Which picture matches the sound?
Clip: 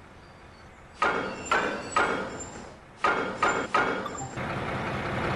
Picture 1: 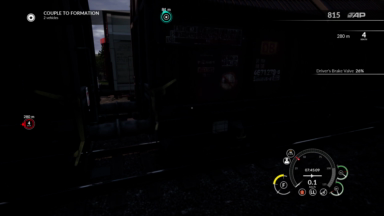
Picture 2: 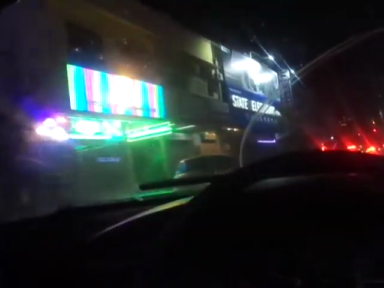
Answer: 1